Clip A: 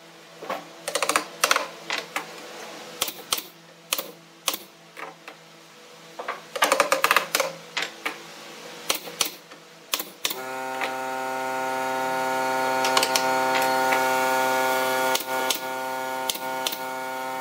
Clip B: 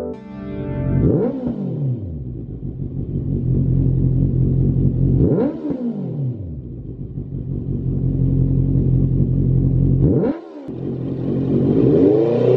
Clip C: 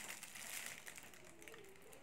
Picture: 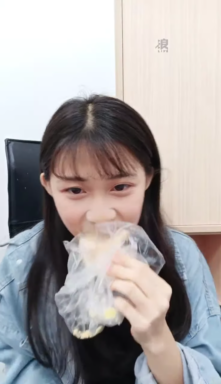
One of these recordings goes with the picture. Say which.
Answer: C